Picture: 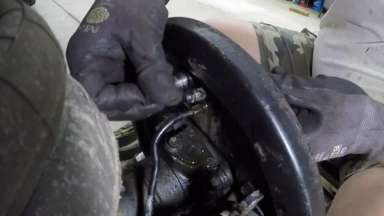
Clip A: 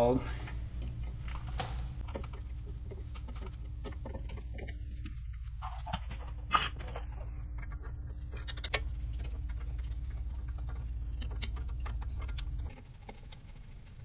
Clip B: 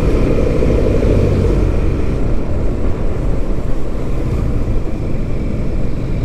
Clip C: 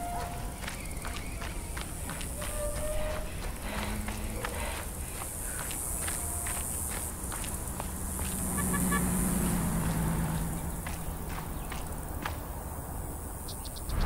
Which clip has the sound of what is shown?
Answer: A